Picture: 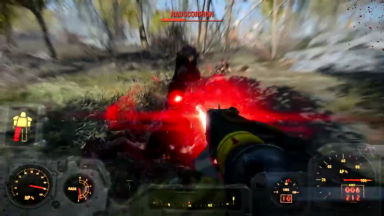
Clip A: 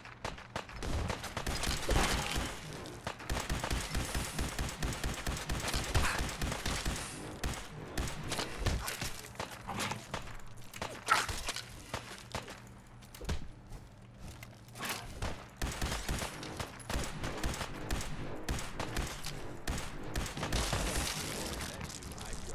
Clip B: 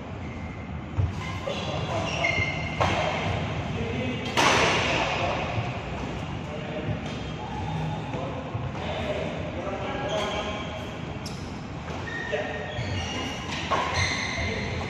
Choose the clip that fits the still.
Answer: A